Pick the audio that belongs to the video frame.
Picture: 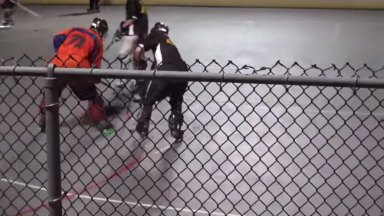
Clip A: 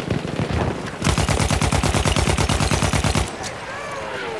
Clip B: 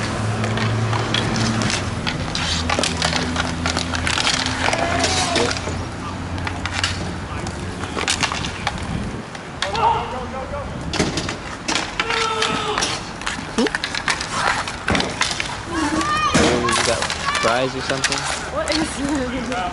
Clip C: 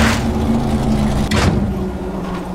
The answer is B